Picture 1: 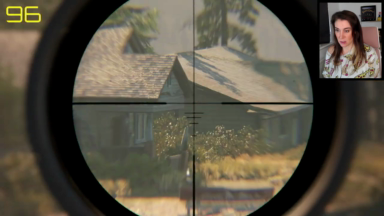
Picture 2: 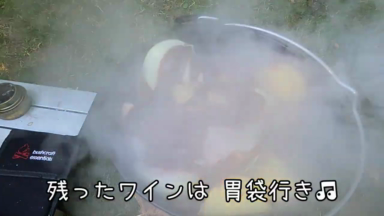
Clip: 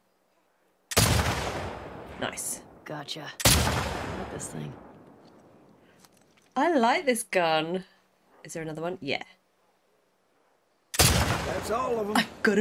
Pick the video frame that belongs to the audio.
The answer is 1